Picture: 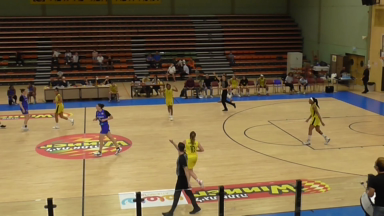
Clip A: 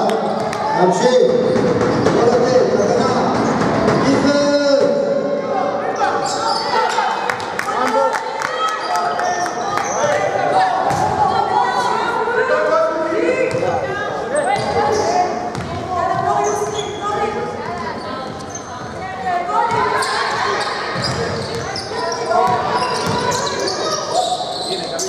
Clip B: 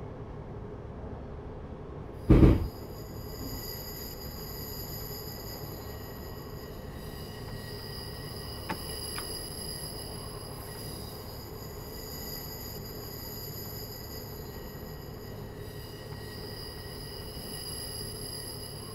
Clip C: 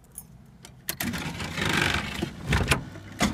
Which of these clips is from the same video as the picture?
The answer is A